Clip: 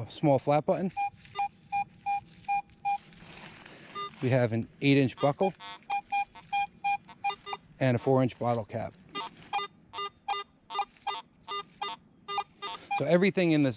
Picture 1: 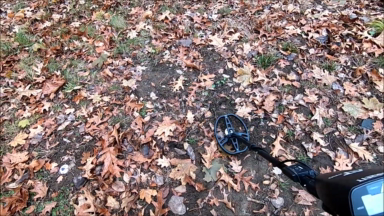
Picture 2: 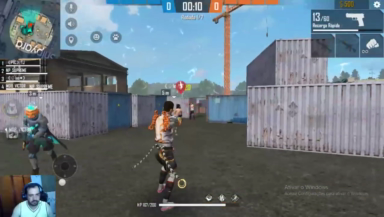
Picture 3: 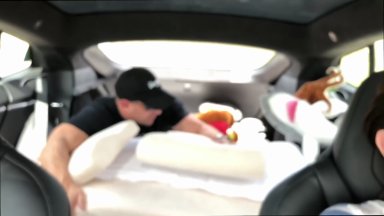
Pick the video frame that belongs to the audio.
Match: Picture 1